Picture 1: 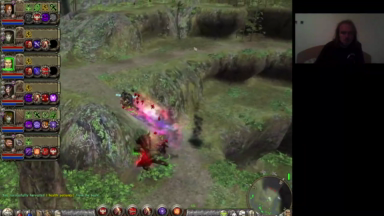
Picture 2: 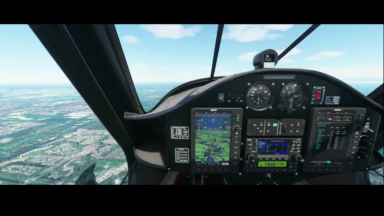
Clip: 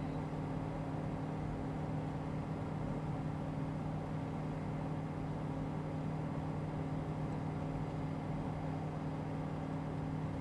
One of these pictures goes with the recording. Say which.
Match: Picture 2